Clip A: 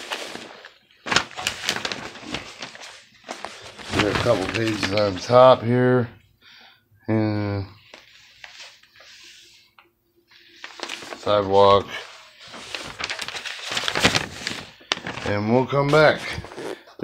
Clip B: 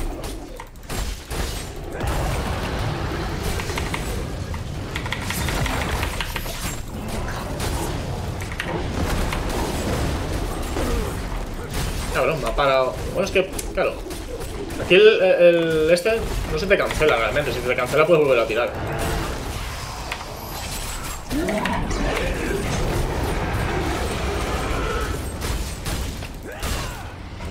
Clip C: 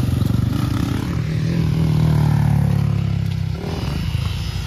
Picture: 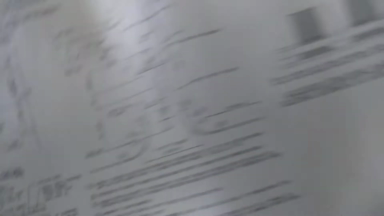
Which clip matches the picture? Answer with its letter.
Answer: A